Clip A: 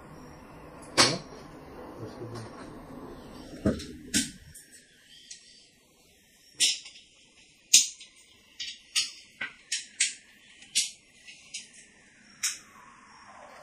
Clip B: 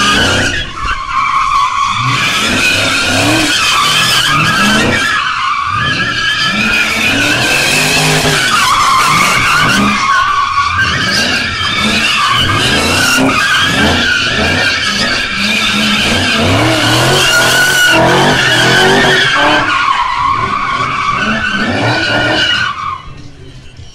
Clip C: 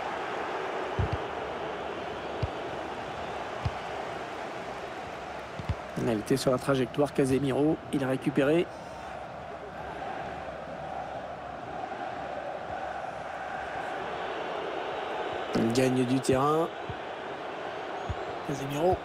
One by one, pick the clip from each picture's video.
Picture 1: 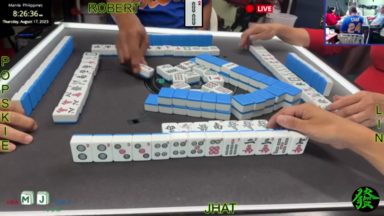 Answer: A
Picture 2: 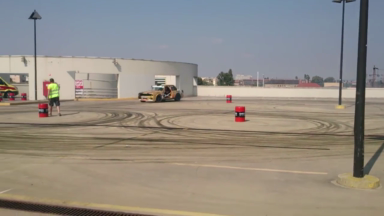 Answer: B